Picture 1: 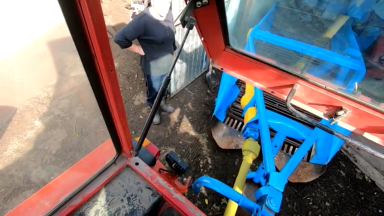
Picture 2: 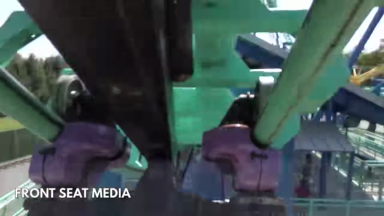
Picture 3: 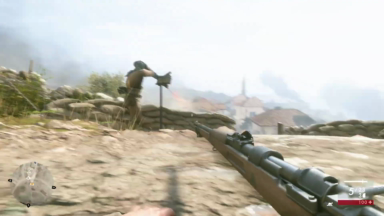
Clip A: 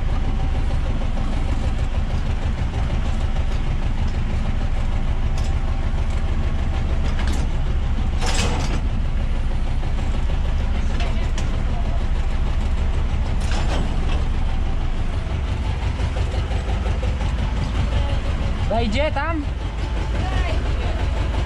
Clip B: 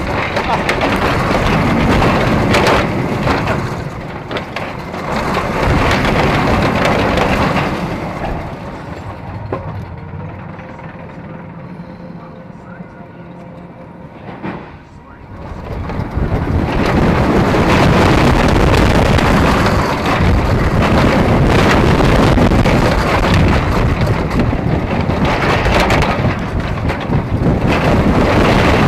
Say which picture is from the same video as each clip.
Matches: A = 1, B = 2